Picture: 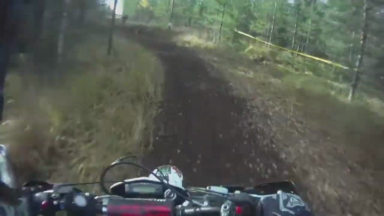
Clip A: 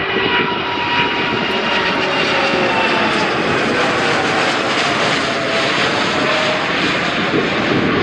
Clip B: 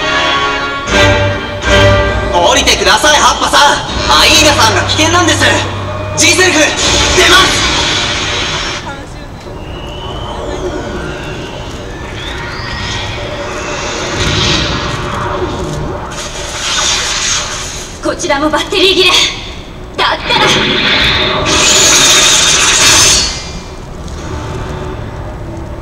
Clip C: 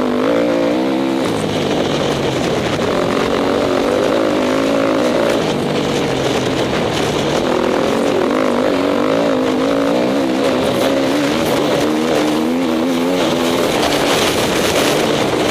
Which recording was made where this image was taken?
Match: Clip C